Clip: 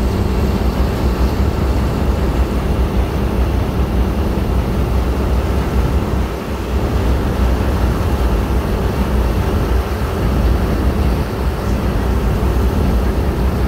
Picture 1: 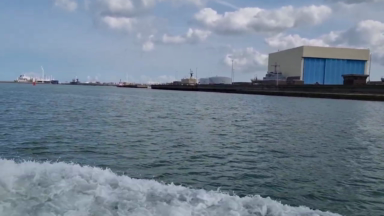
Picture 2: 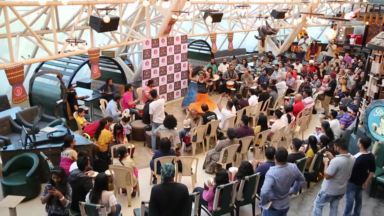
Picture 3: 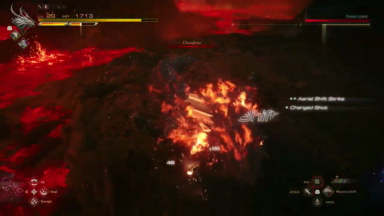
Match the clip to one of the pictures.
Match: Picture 1